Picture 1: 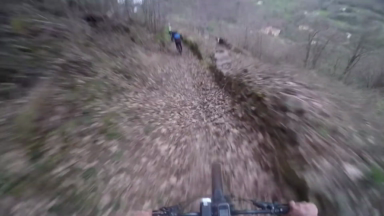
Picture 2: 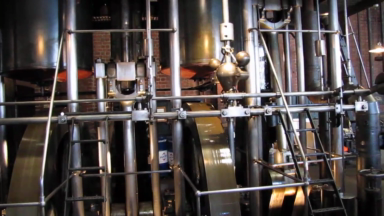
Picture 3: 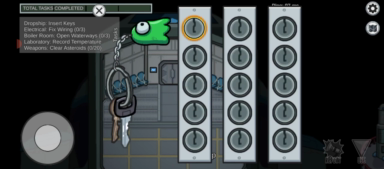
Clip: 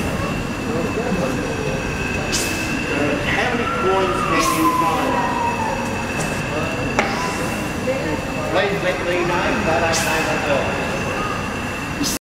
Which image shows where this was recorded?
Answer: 2